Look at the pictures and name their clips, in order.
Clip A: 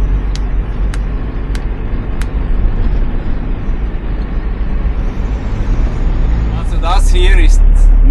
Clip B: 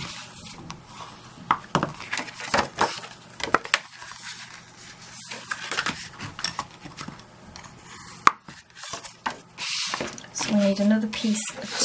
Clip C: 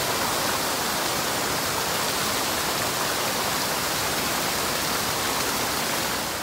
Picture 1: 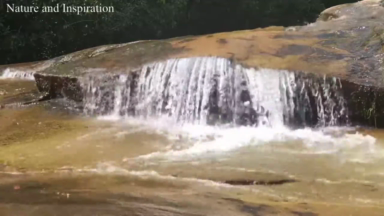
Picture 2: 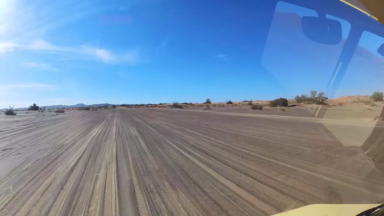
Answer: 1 C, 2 A